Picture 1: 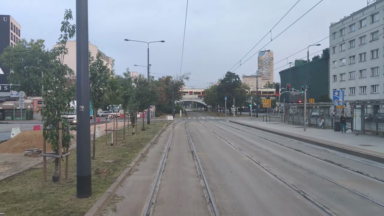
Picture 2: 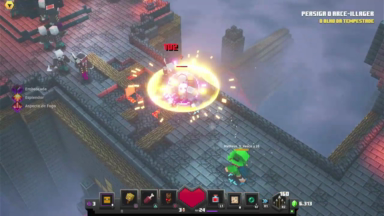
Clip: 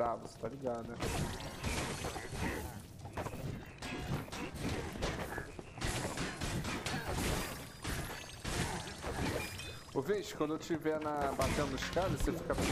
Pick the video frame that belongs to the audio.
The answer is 2